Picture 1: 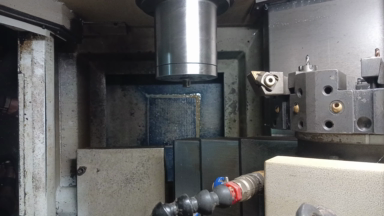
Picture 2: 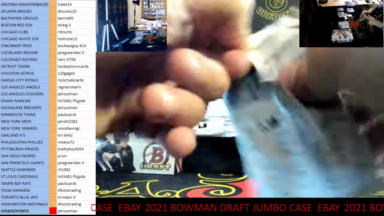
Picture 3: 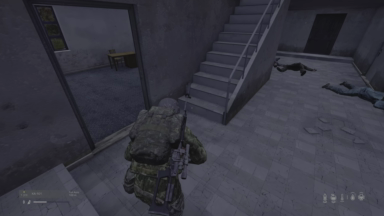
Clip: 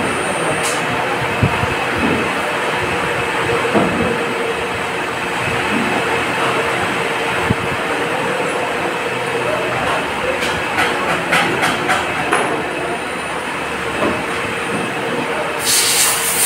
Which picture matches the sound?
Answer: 1